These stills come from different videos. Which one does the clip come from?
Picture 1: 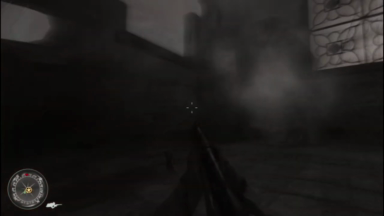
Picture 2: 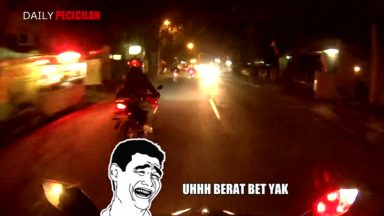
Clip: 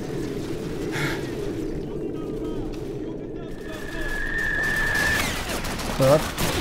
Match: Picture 1